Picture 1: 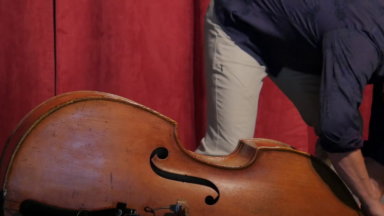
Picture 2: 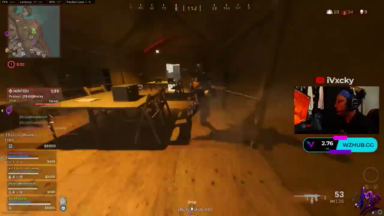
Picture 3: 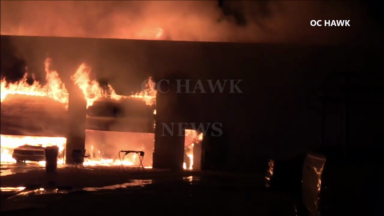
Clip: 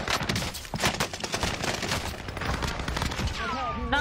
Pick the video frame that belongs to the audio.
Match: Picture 2